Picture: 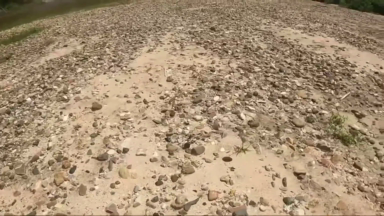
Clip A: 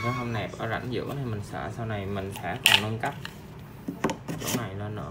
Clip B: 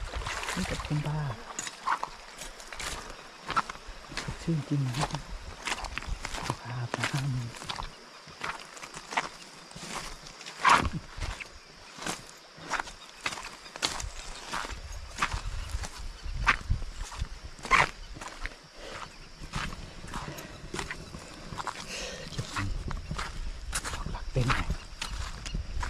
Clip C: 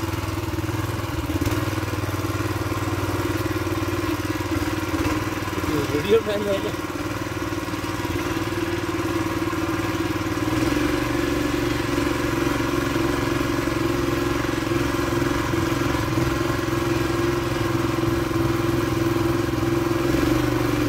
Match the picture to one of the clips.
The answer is B